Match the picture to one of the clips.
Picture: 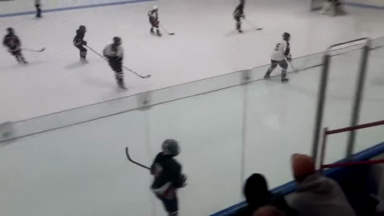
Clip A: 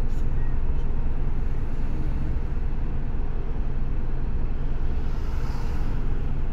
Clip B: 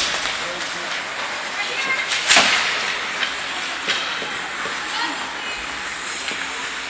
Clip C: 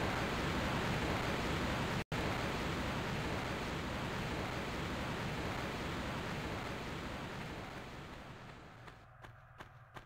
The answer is B